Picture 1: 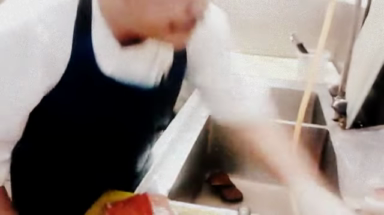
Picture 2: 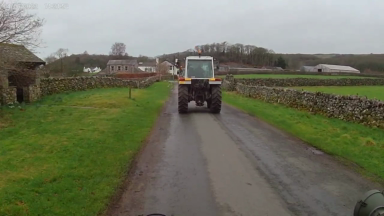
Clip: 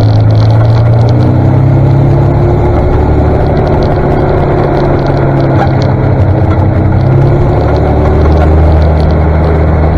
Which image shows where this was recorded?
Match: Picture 2